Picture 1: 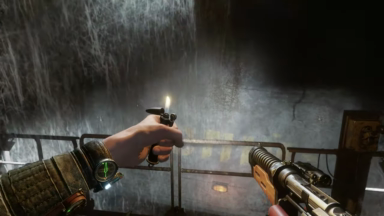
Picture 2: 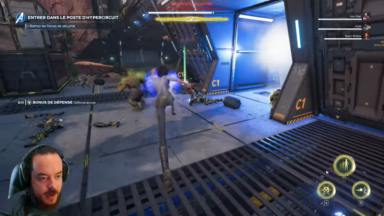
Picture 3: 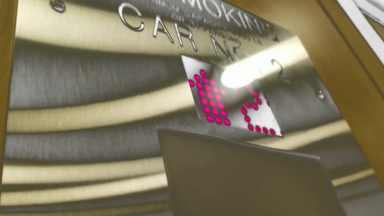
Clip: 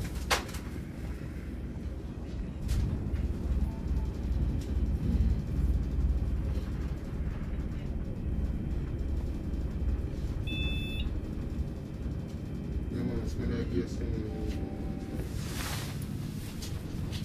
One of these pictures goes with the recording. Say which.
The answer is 3